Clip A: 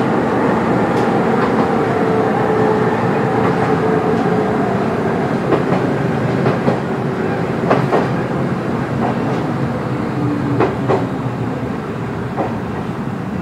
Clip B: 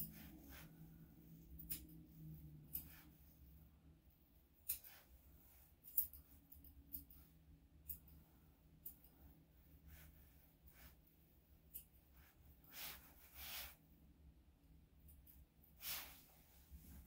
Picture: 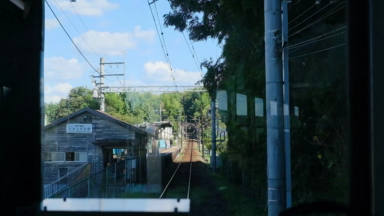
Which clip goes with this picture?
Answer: A